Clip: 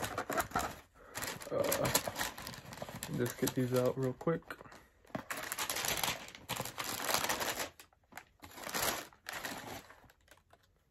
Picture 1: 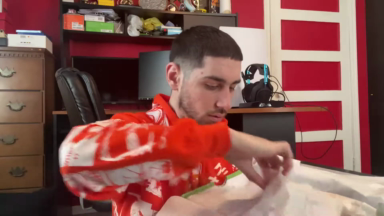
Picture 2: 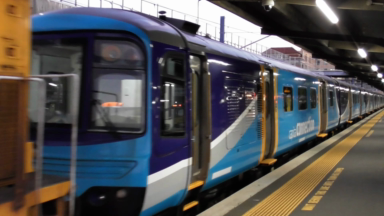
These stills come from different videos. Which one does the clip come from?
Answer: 1